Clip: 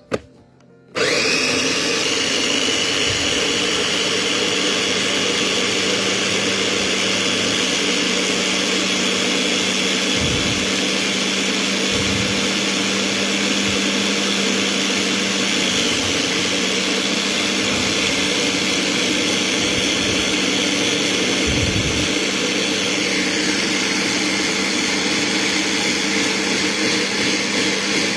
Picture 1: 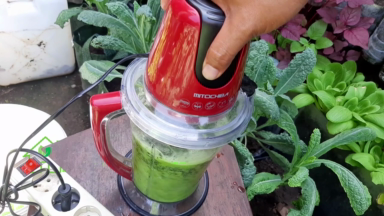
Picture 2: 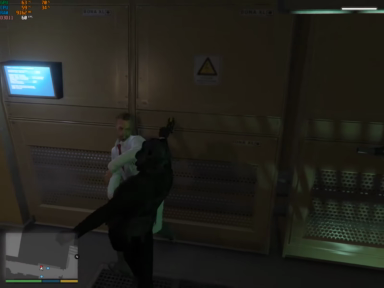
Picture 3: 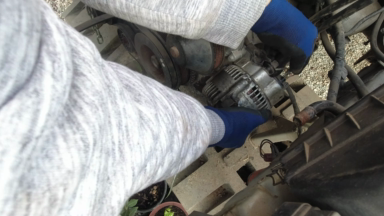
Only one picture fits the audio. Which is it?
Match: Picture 1